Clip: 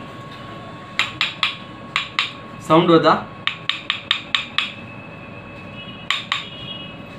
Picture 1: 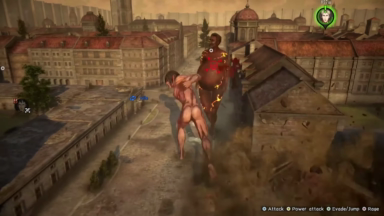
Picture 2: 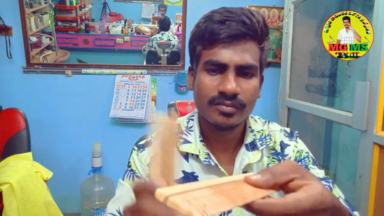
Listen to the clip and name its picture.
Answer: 2